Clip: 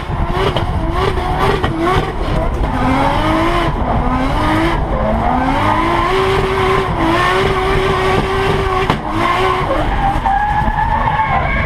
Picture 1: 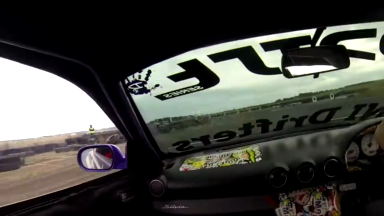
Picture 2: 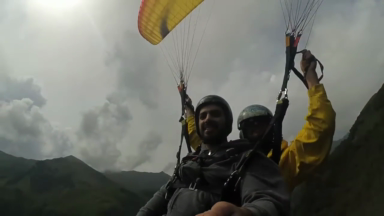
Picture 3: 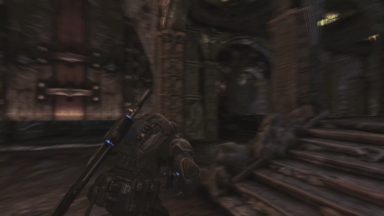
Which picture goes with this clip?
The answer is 1